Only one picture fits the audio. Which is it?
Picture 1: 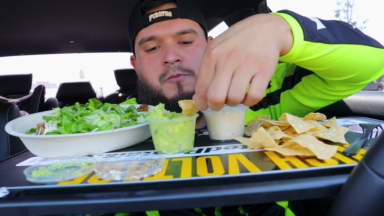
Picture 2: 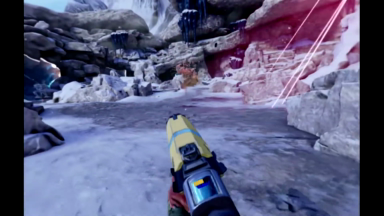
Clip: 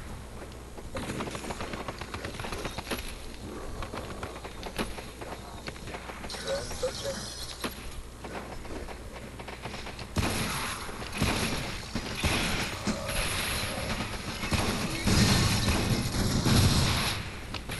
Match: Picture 2